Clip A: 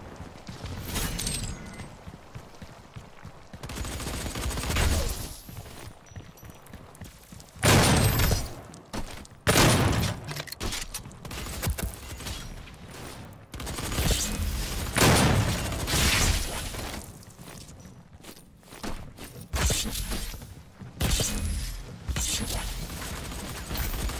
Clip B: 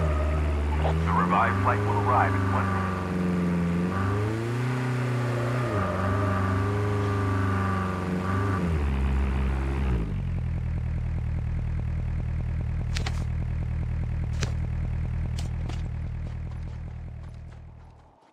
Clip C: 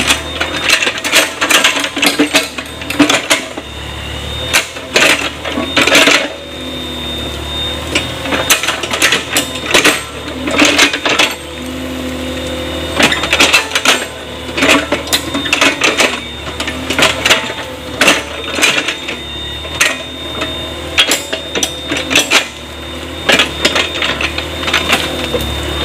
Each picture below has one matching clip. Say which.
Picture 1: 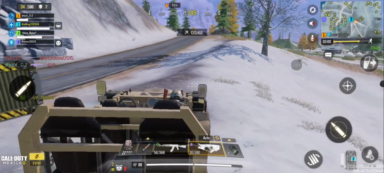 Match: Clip B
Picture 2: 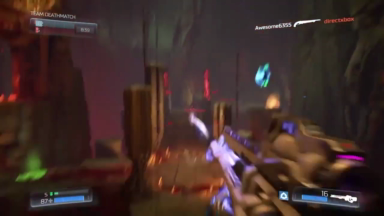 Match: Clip A